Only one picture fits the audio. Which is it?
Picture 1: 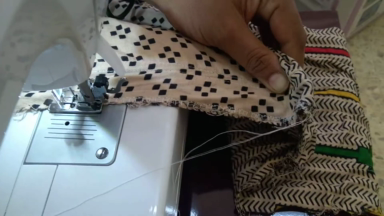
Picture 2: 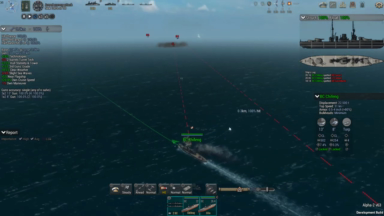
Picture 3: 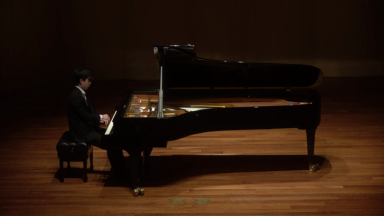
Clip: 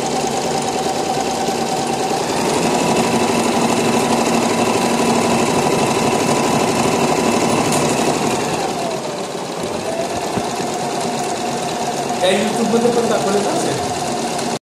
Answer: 1